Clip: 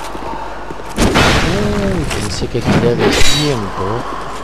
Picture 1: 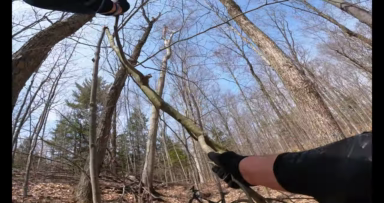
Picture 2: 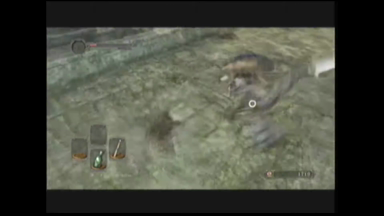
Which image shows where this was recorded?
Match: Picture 2